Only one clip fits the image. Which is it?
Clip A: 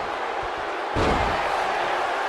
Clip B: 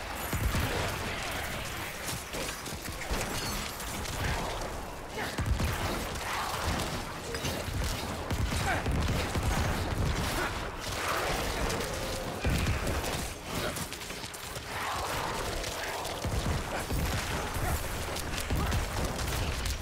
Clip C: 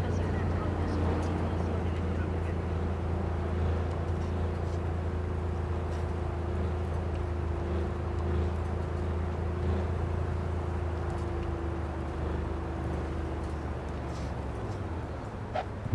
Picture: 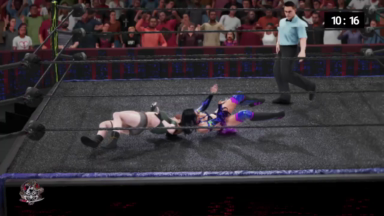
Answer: A